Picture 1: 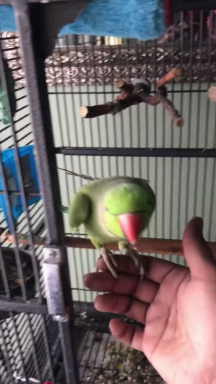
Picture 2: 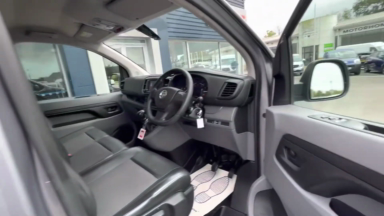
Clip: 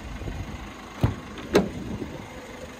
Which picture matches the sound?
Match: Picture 2